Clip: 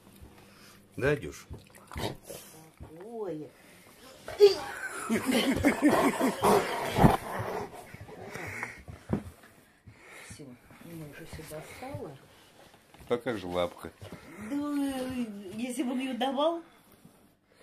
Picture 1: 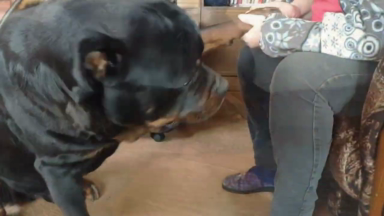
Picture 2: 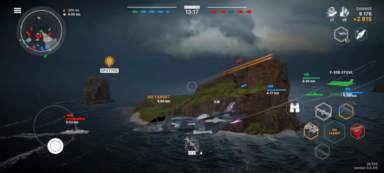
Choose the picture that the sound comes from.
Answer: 1